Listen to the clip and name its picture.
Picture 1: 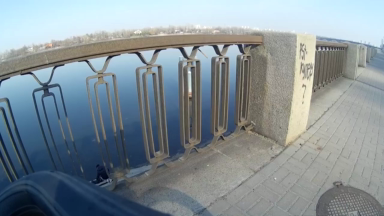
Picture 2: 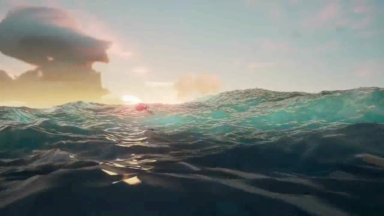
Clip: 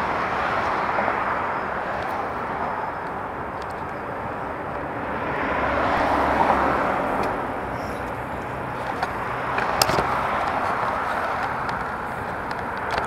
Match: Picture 1